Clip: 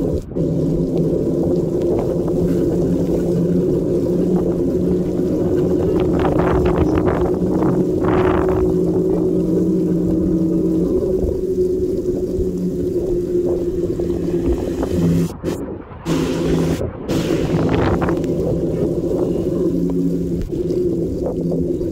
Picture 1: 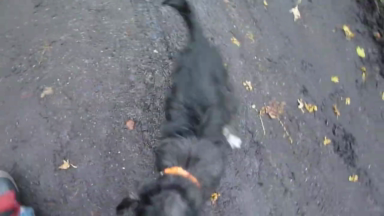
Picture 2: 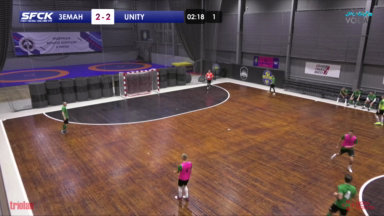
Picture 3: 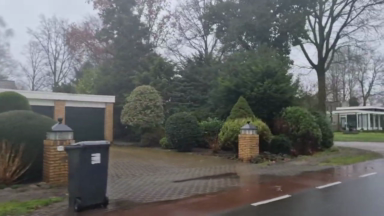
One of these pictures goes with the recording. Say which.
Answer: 3